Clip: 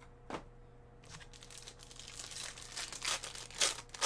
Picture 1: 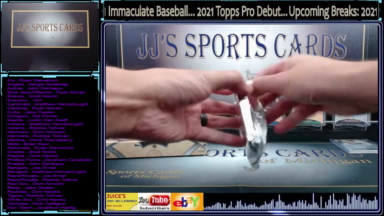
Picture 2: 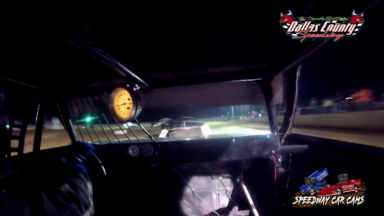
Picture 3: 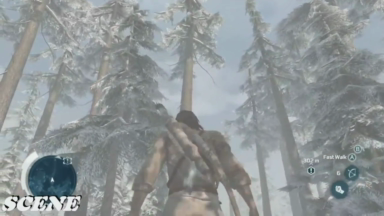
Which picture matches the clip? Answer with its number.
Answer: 1